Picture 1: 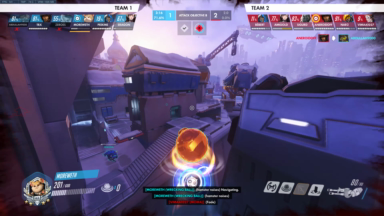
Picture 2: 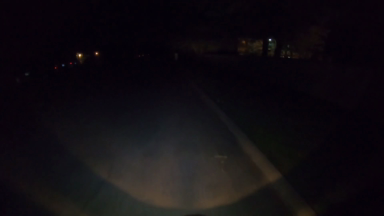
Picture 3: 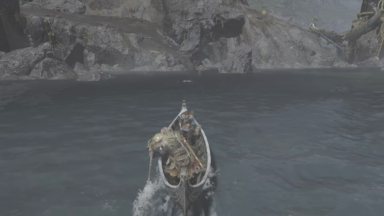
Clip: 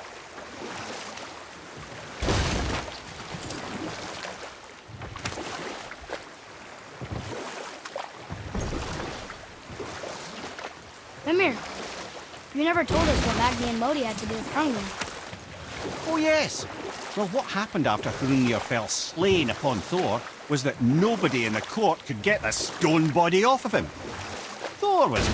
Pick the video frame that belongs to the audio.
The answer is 3